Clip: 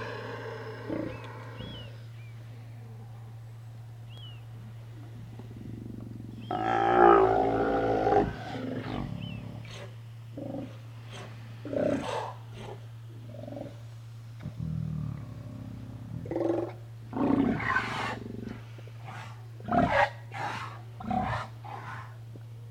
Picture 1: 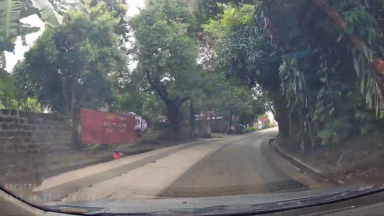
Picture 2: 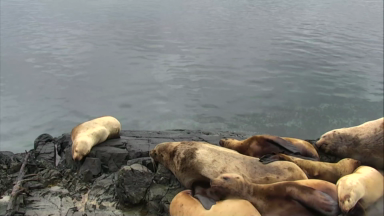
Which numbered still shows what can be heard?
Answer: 2